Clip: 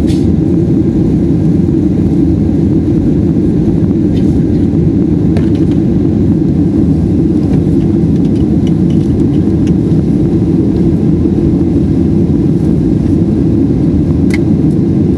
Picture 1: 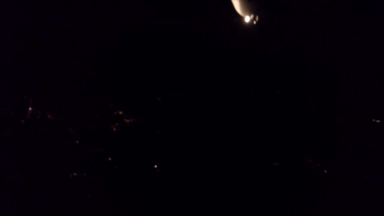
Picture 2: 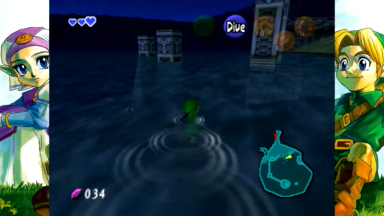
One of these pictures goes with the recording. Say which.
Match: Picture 1